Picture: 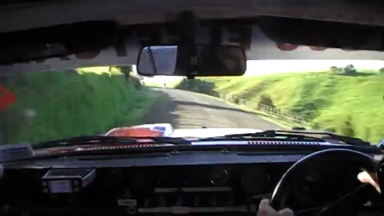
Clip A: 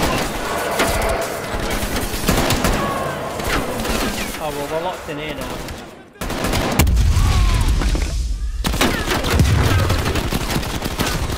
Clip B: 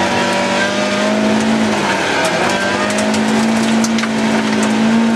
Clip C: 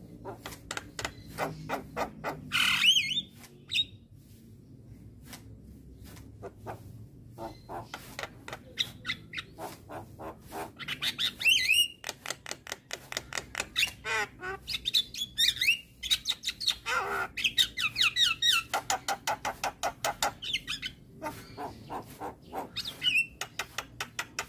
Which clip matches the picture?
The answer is B